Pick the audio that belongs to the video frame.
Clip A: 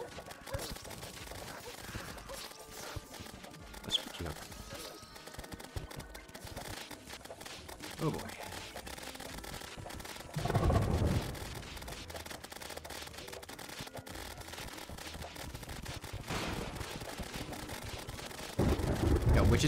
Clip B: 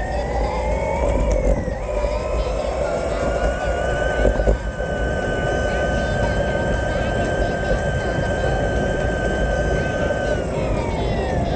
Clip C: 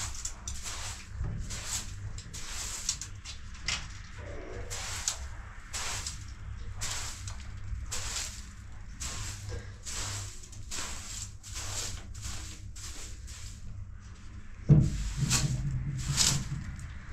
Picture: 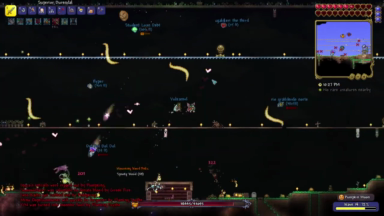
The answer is A